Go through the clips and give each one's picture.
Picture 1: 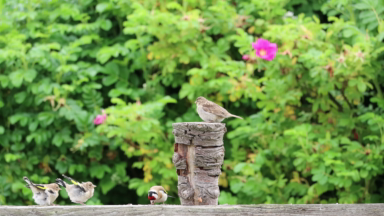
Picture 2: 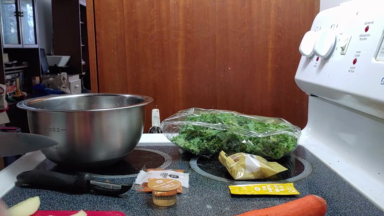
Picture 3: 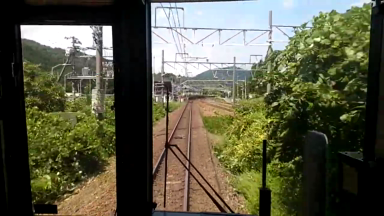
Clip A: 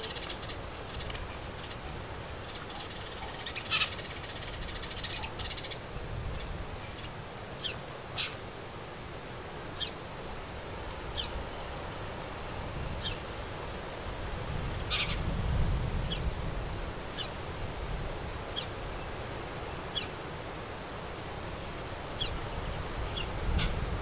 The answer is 1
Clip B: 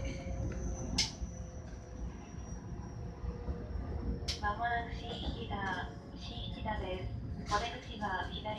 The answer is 3